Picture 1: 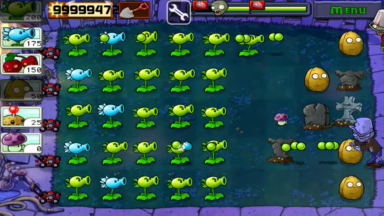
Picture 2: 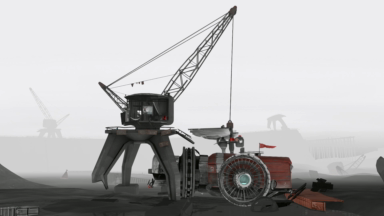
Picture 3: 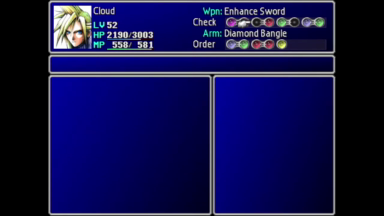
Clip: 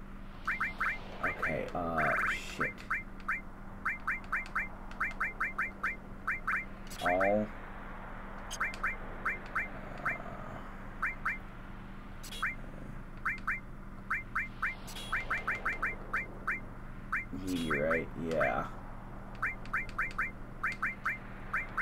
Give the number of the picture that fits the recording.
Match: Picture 3